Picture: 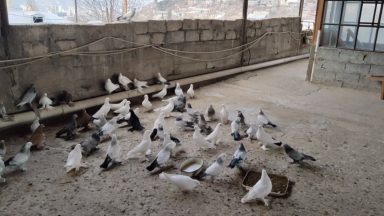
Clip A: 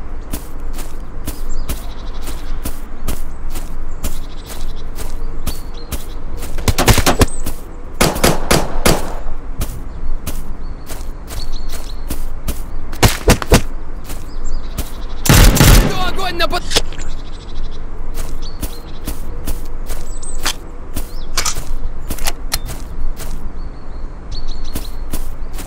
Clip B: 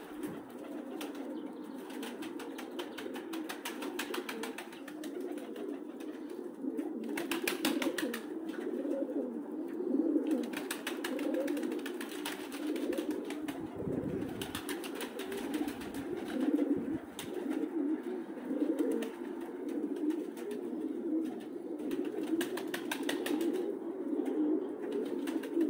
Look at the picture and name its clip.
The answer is B